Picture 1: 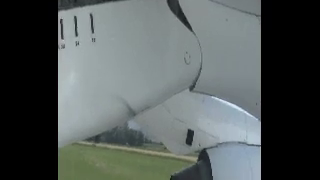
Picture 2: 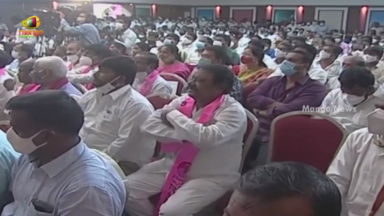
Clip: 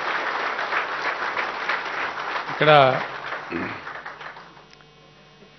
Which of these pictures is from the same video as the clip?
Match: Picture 2